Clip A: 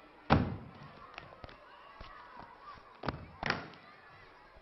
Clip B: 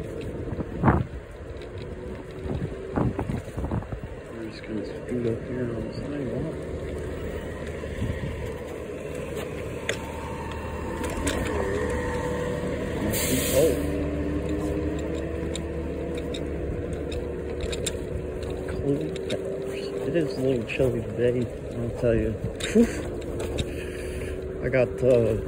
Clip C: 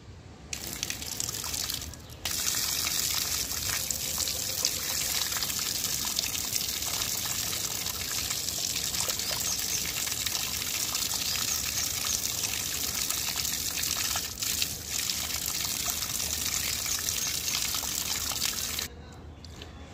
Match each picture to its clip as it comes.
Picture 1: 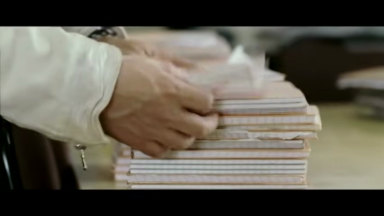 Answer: A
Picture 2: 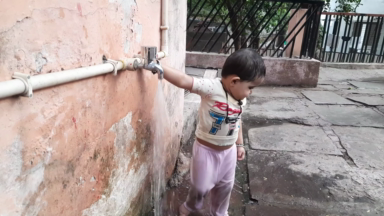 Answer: C